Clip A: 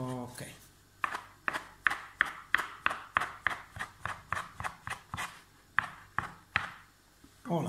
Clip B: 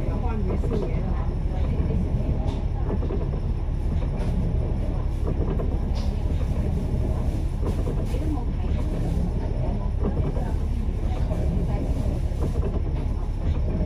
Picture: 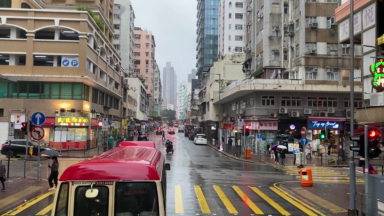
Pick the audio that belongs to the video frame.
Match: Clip B